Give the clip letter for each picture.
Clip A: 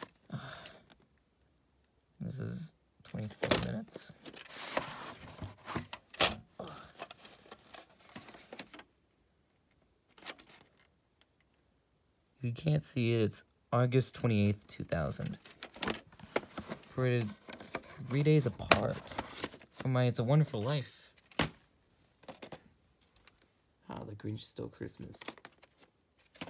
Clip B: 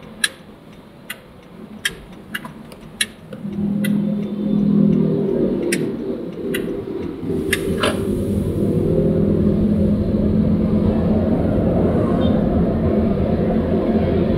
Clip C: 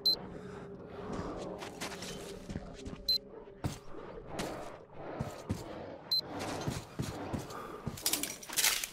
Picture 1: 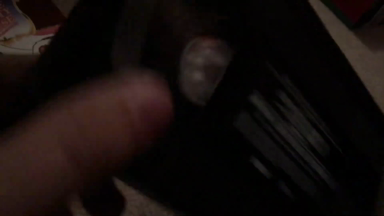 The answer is A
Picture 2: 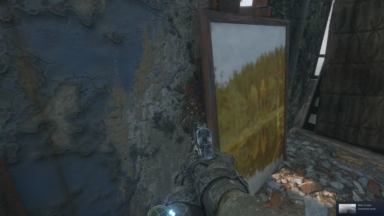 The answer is C